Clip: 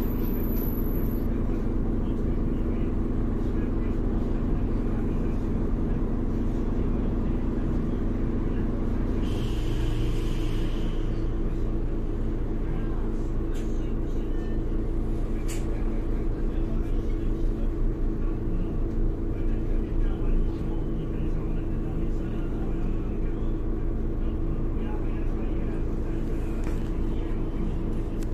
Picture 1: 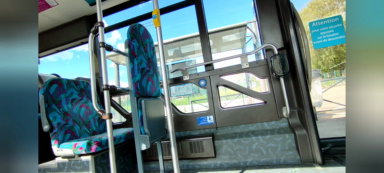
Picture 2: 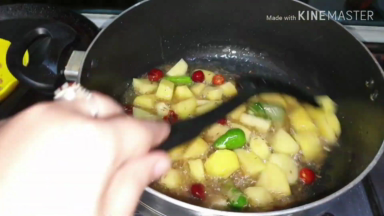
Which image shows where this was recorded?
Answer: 1